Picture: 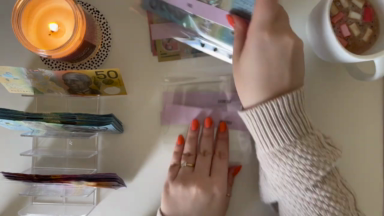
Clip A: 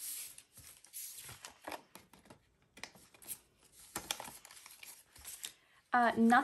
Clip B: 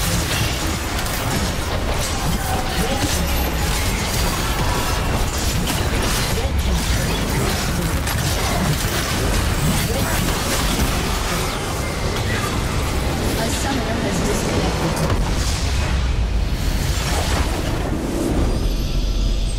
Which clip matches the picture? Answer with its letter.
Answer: A